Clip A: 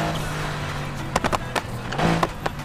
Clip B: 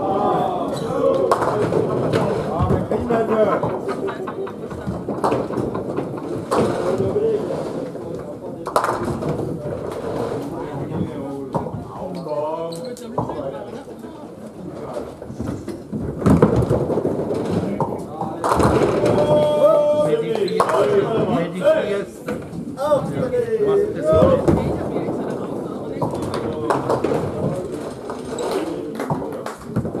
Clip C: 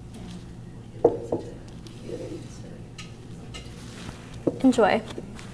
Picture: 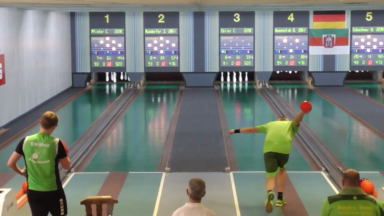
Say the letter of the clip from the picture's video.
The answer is B